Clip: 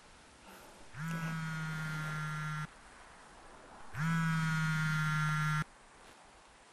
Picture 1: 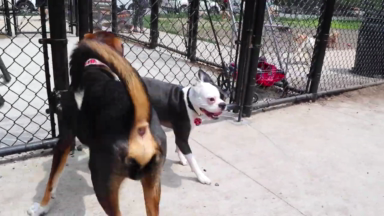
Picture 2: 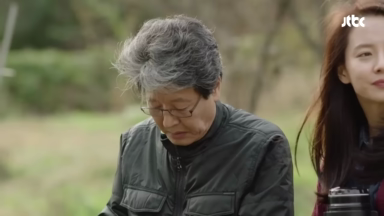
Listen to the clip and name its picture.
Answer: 2